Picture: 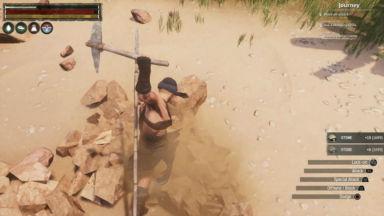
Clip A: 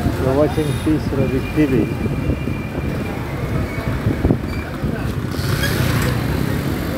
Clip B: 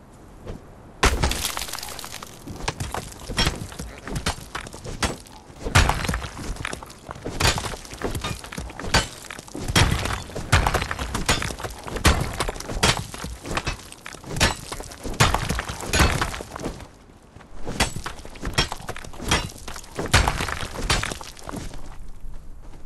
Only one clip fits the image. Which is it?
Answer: B